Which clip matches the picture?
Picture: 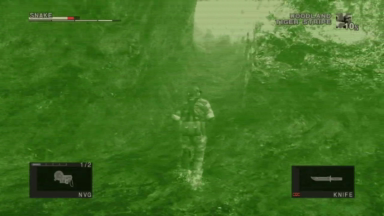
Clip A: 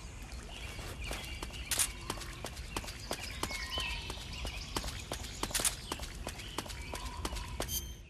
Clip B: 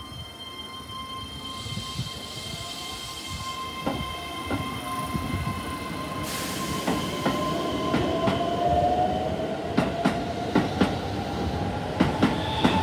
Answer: A